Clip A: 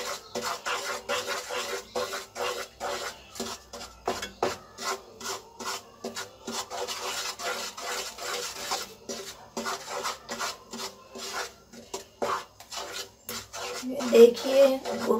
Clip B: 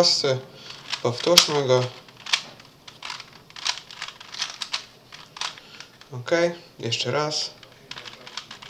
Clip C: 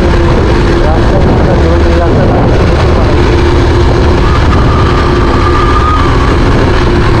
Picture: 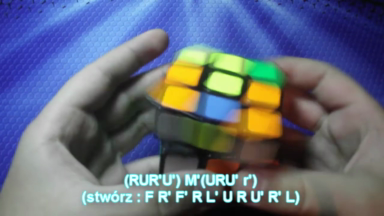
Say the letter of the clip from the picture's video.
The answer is B